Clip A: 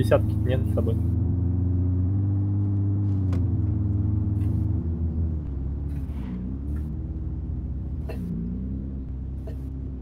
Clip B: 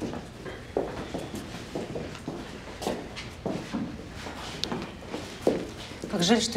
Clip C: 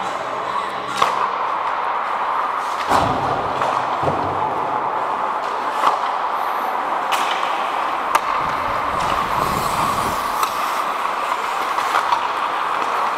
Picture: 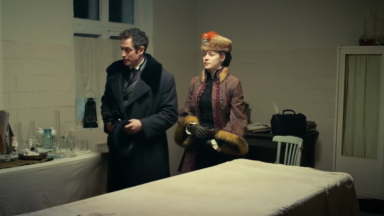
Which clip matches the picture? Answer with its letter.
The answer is B